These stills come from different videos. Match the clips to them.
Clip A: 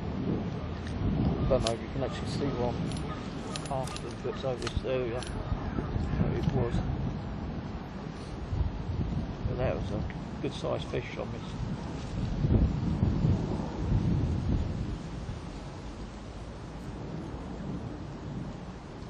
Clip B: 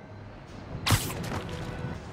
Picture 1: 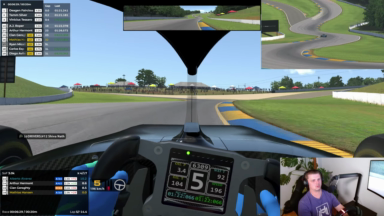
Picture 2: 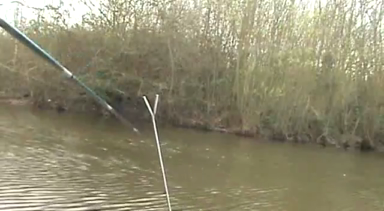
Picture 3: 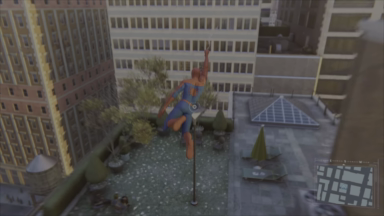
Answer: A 2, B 3